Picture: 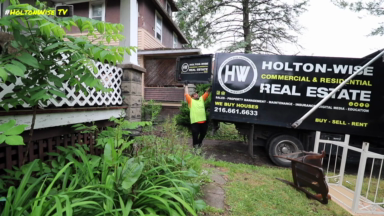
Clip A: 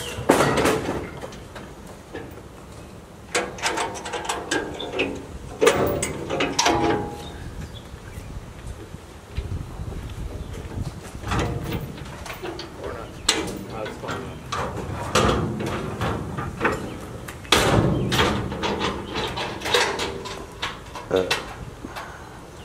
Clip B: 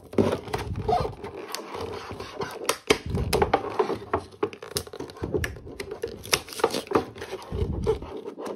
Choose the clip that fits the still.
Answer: A